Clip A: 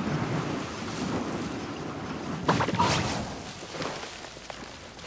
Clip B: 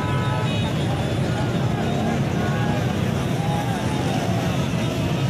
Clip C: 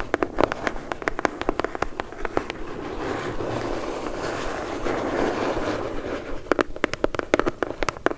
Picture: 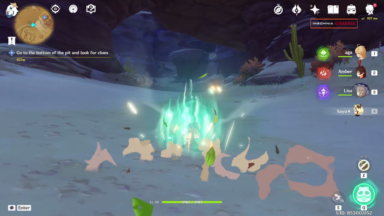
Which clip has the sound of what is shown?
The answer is A